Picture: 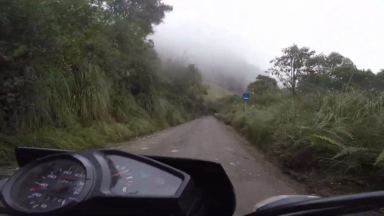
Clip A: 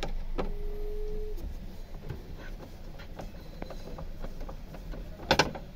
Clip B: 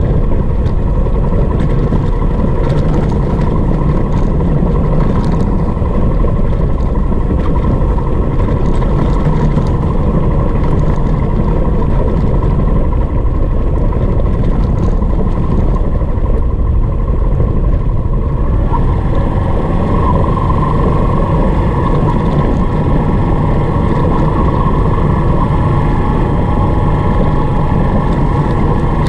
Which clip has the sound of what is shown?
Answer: B